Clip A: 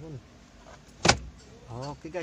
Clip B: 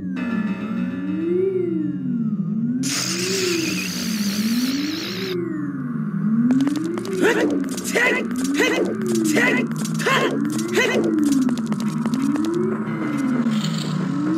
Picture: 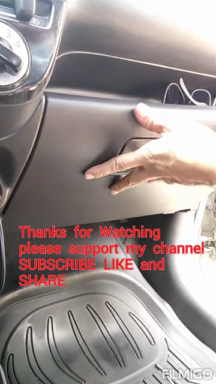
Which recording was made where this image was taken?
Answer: A